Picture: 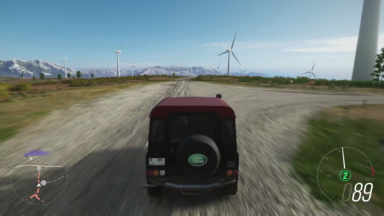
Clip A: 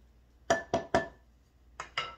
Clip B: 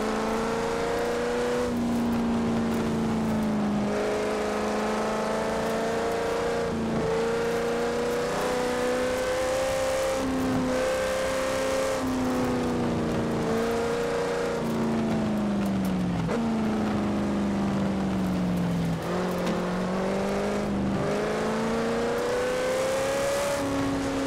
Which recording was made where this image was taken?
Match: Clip B